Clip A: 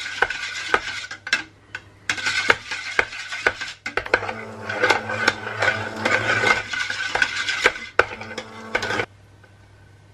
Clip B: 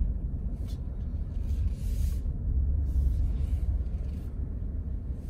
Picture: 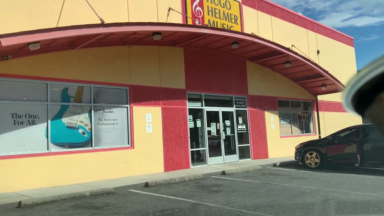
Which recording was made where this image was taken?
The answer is B